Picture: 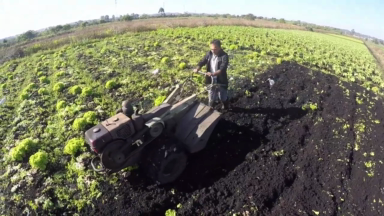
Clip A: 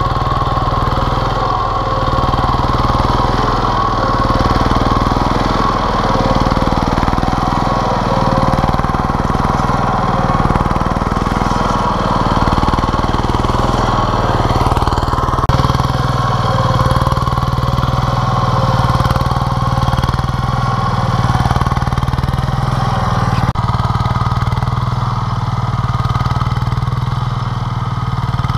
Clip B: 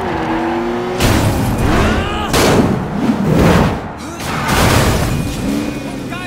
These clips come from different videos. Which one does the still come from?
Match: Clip A